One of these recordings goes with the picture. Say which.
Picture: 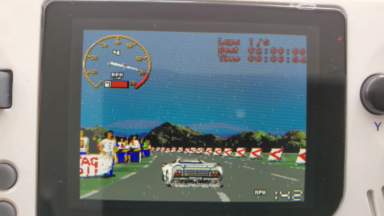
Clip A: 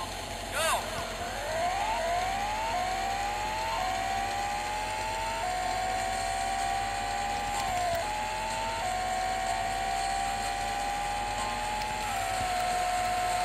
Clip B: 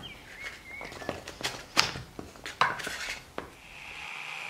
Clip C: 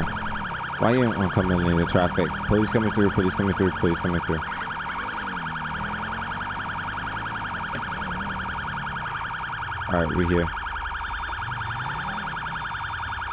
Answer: A